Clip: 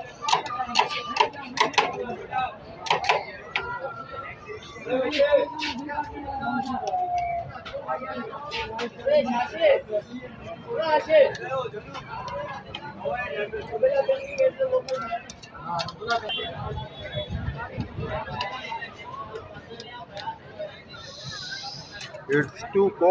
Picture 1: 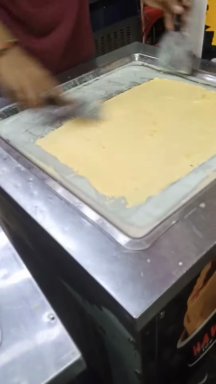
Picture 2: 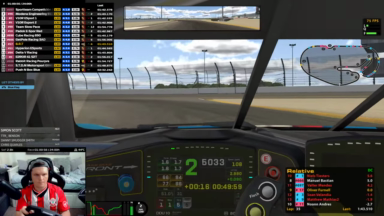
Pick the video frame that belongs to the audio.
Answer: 1